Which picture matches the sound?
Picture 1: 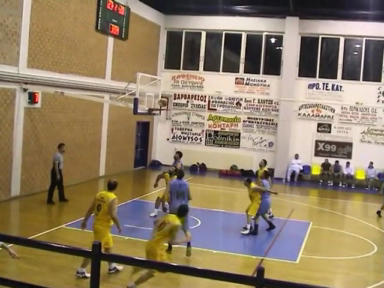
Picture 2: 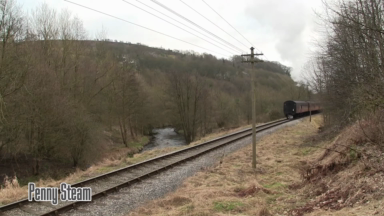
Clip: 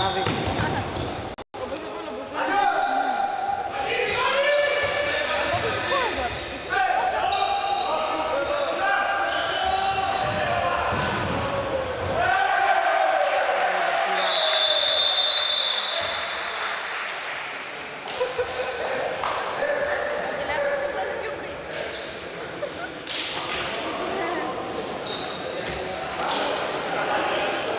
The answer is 1